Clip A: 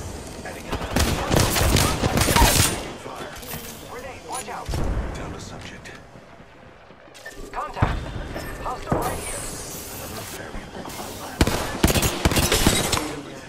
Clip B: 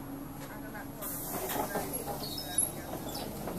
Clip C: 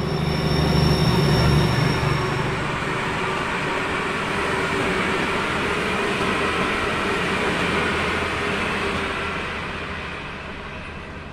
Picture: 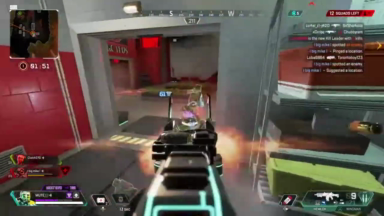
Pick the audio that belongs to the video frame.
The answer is A